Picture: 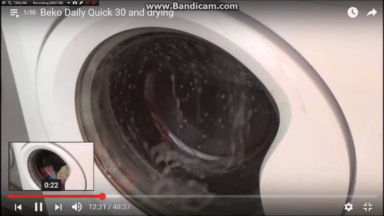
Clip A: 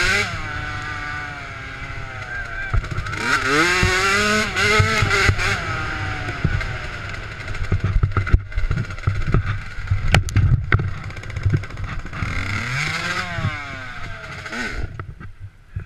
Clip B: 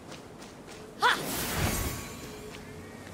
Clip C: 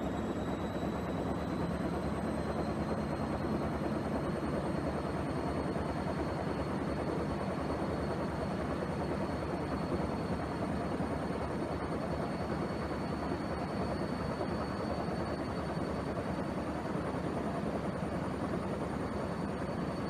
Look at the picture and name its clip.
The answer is C